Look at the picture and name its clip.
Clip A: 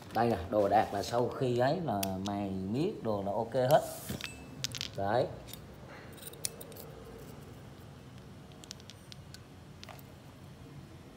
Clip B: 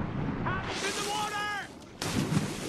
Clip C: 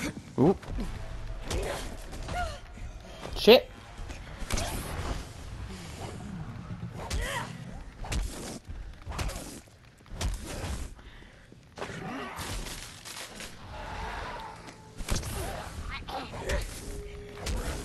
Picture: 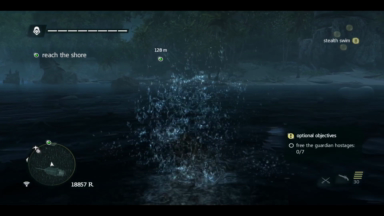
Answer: B